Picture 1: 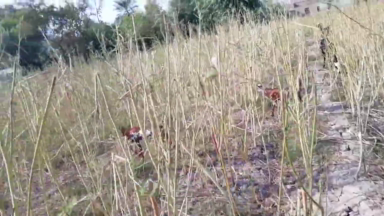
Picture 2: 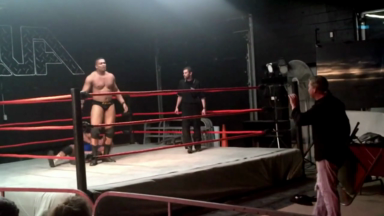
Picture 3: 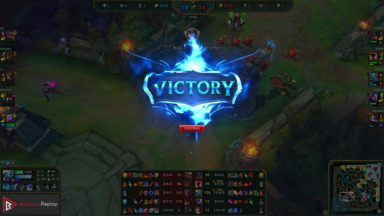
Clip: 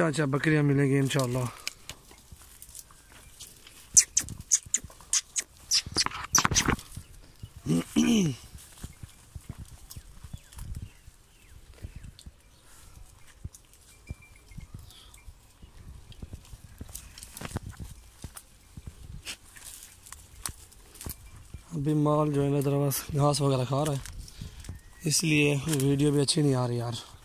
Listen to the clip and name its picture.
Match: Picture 1